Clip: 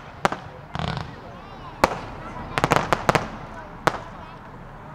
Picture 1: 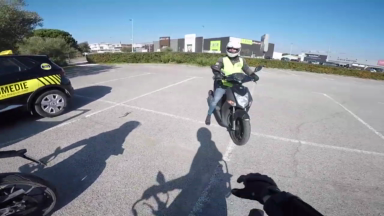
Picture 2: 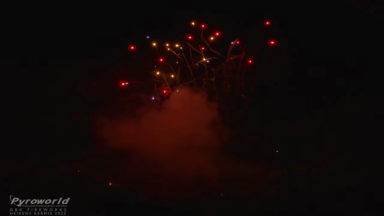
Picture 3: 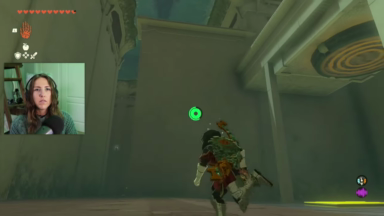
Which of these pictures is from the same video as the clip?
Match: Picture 2